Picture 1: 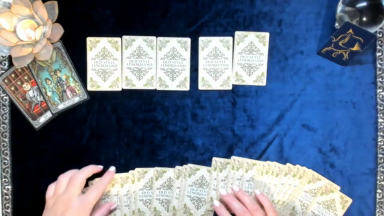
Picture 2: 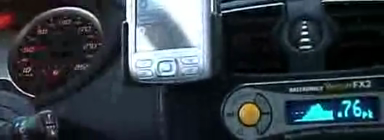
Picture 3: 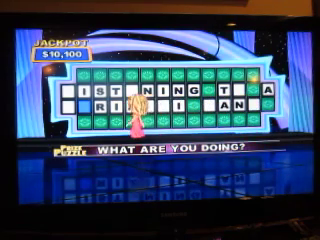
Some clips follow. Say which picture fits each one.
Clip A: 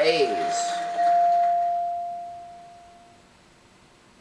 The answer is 3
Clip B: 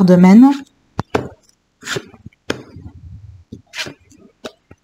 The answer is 1